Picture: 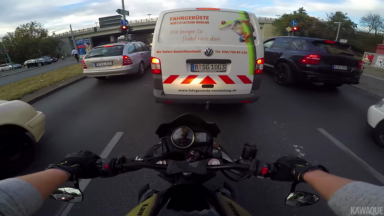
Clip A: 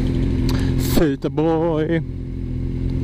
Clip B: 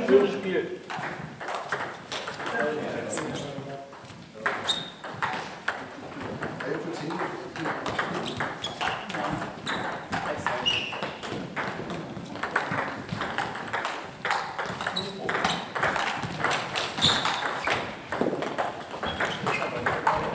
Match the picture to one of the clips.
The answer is A